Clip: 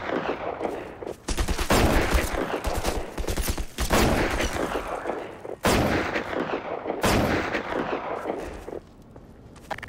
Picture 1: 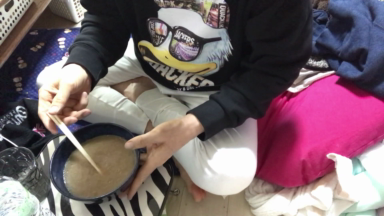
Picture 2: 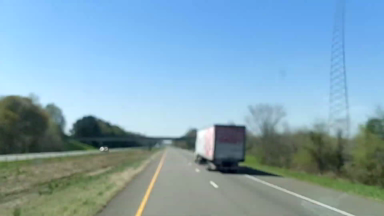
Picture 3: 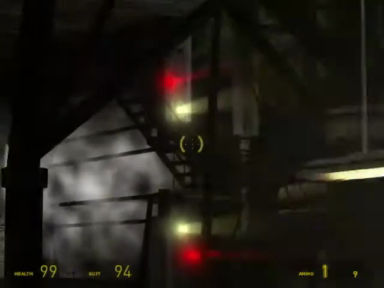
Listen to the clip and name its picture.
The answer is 3